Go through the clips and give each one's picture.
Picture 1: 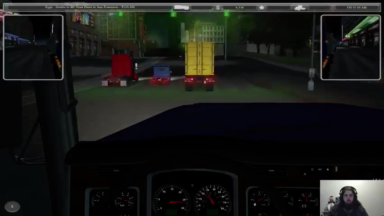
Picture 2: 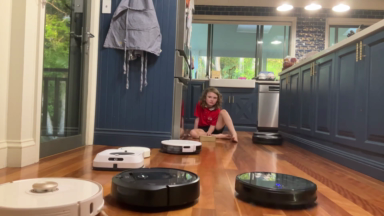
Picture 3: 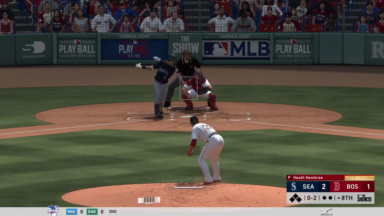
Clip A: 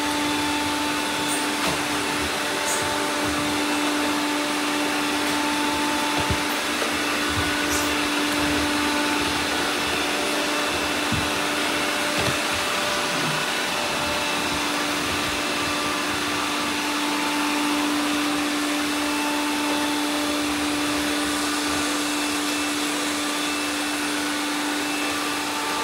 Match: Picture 2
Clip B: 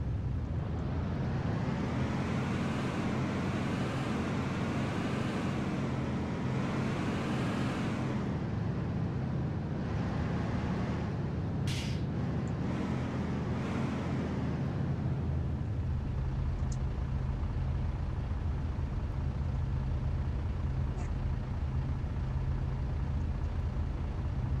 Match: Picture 1